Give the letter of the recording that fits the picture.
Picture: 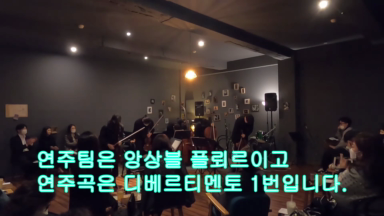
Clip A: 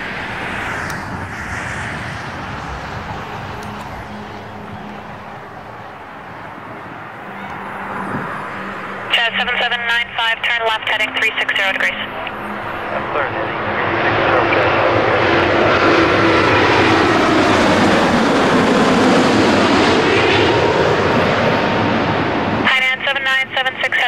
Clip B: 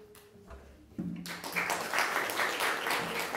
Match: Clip B